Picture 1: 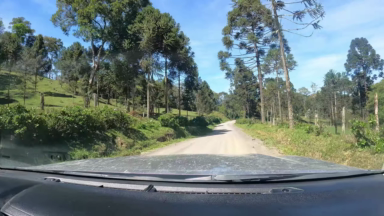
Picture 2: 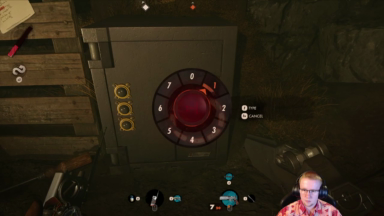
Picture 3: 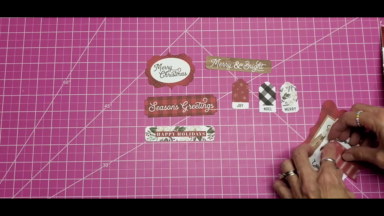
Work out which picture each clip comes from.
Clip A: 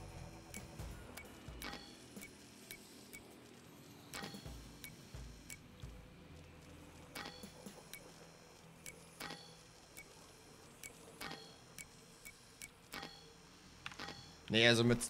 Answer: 2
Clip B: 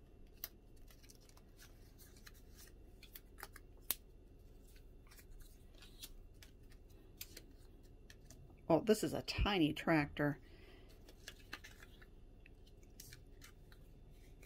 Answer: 3